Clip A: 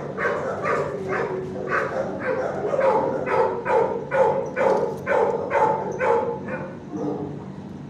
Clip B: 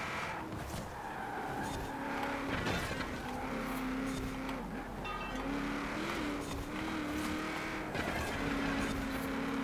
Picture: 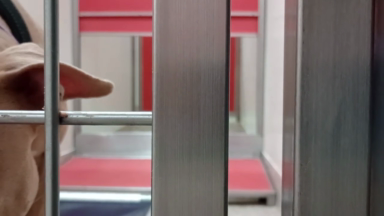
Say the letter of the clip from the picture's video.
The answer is A